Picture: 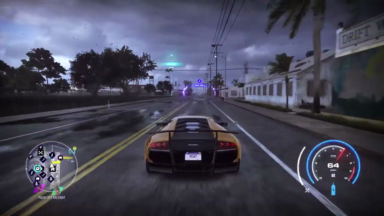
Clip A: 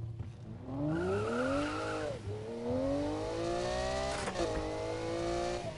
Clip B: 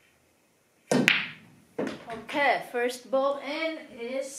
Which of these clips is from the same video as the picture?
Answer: A